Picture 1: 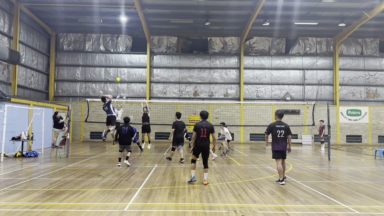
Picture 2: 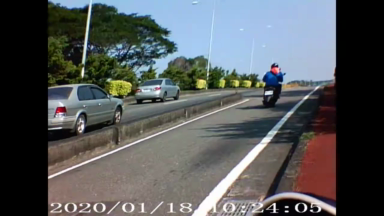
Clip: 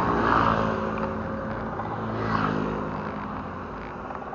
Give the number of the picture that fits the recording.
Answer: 2